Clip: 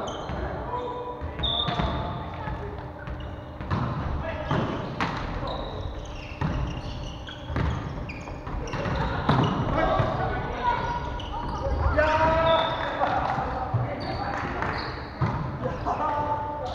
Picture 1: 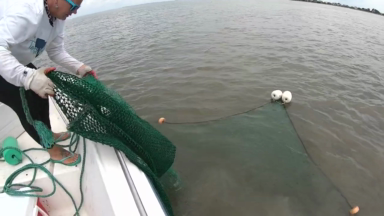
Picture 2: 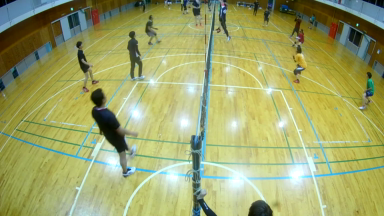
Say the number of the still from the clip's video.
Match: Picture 2